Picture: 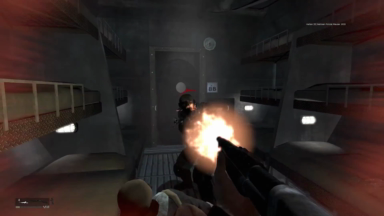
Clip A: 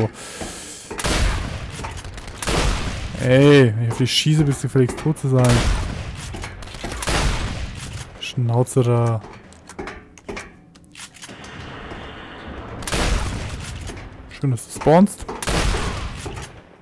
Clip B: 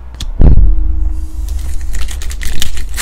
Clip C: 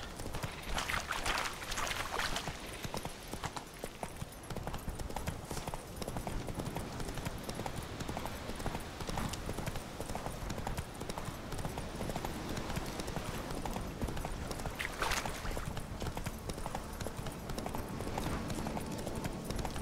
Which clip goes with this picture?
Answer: A